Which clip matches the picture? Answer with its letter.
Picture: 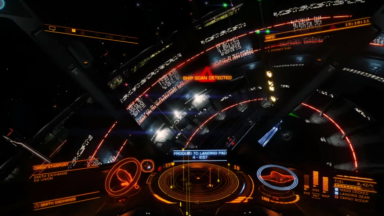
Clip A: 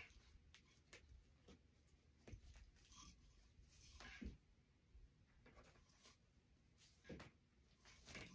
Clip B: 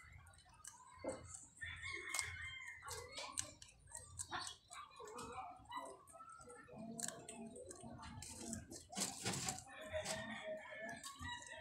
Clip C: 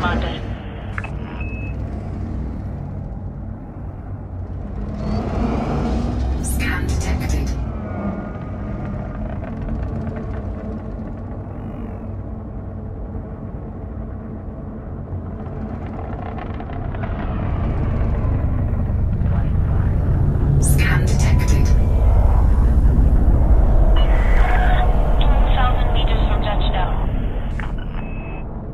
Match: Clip C